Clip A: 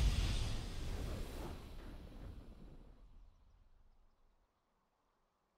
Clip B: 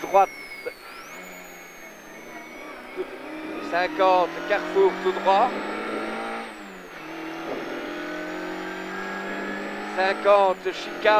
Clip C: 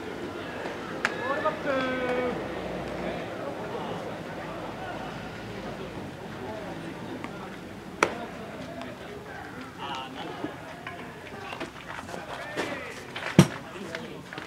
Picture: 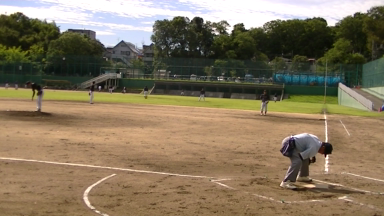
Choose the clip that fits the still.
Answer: C